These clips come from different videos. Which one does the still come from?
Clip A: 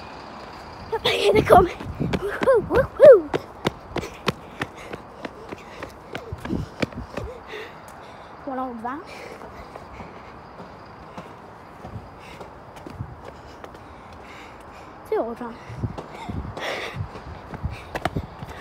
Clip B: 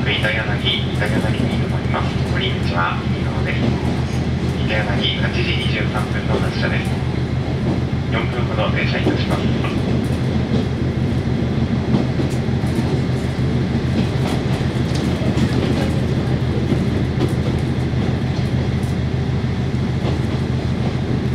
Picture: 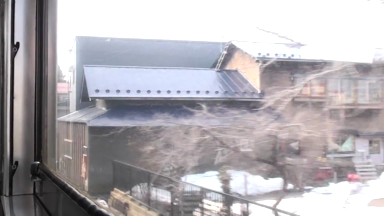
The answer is B